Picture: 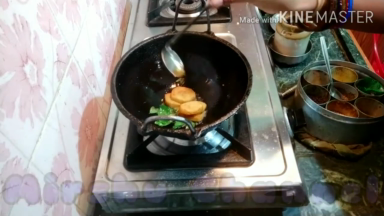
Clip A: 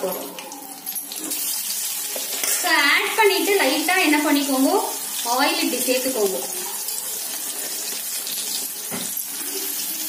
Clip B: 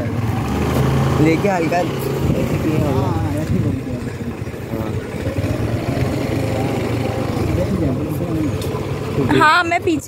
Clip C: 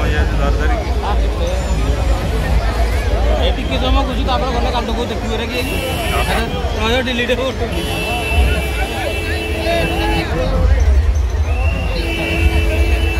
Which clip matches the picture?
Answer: A